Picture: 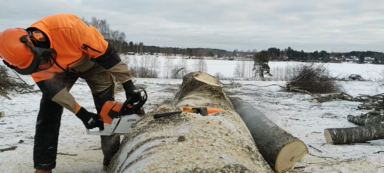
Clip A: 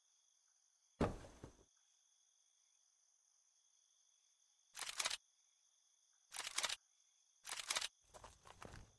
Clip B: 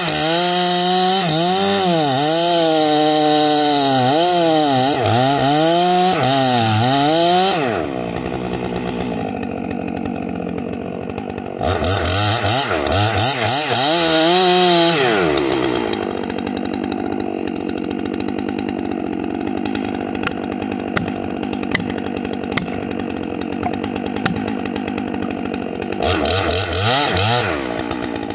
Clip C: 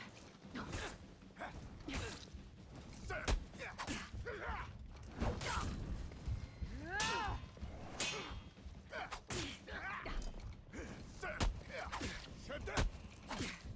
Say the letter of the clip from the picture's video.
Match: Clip B